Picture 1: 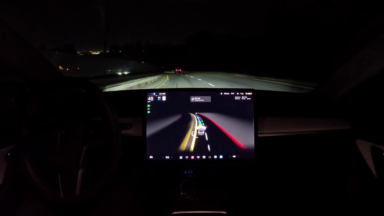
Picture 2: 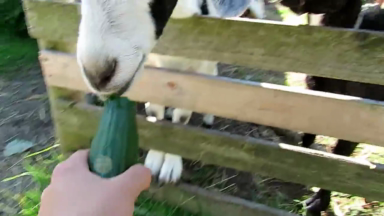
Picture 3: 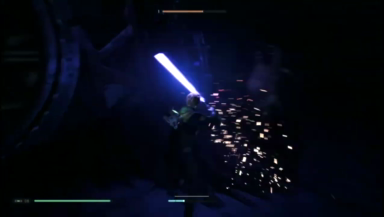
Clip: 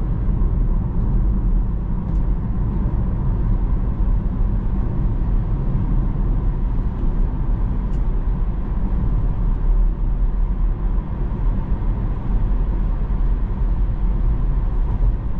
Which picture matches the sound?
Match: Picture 1